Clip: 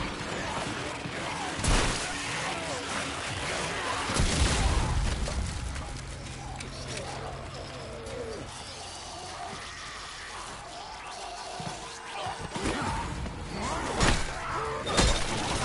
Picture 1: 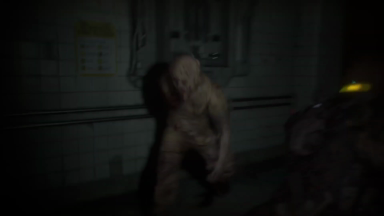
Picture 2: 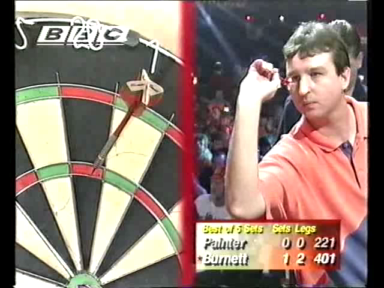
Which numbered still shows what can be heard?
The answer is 1